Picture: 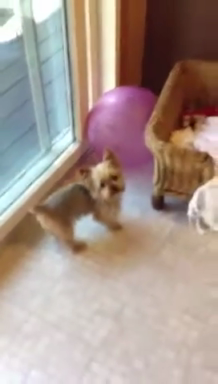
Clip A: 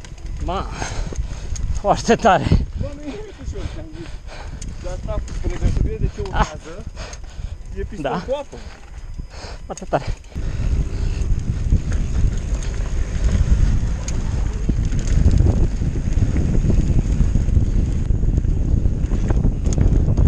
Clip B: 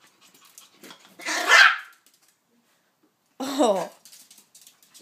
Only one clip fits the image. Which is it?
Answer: B